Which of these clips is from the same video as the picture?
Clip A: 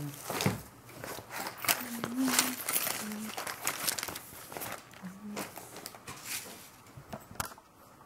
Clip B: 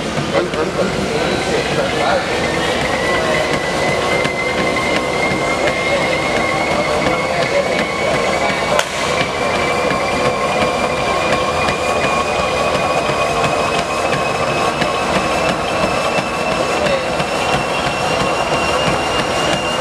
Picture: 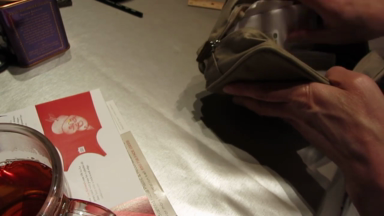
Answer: A